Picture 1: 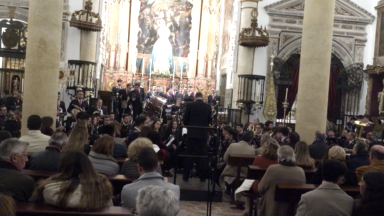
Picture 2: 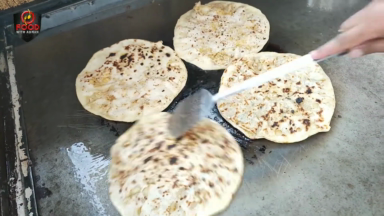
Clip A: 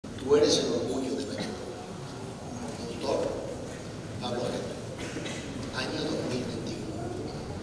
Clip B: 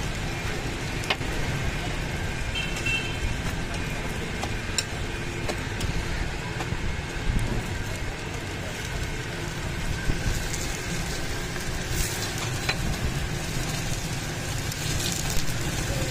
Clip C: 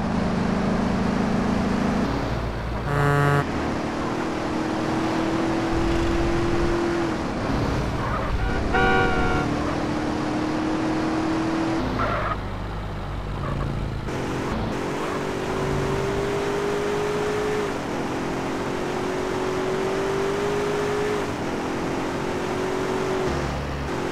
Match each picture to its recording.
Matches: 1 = A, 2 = B